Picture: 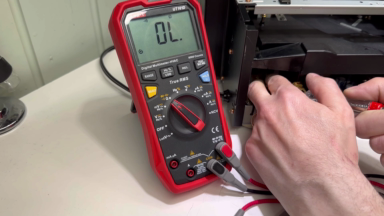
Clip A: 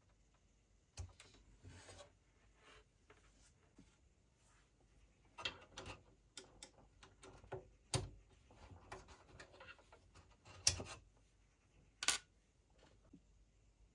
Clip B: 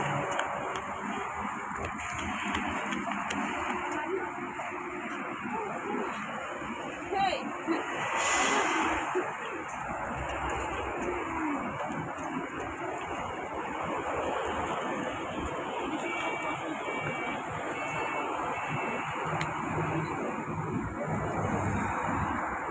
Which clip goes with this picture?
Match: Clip A